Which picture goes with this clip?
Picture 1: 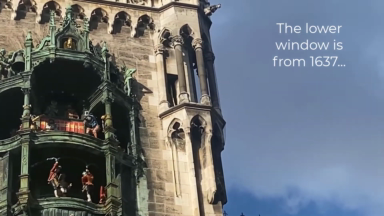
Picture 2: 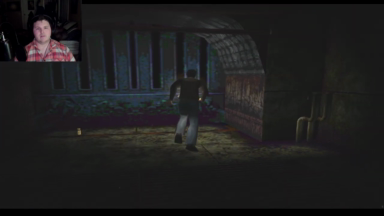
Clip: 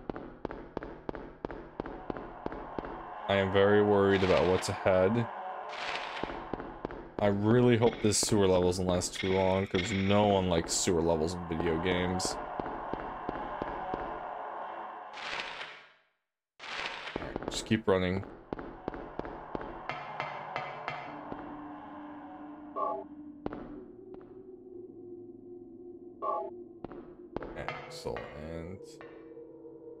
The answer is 2